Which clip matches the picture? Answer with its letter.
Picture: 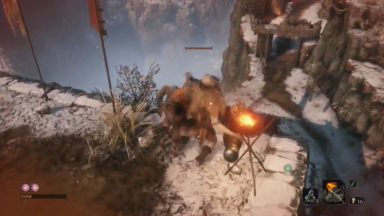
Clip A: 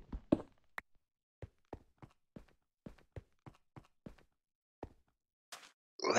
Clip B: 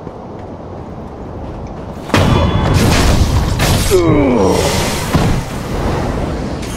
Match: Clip B